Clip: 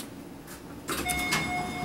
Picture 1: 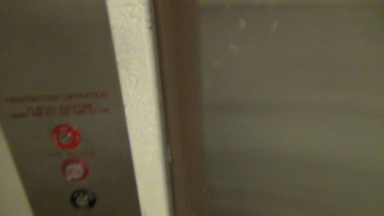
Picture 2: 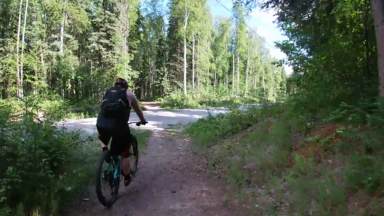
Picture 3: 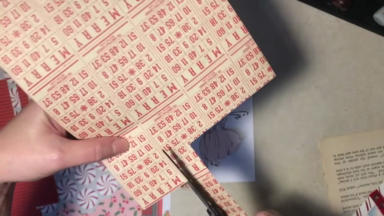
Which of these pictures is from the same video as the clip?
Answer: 1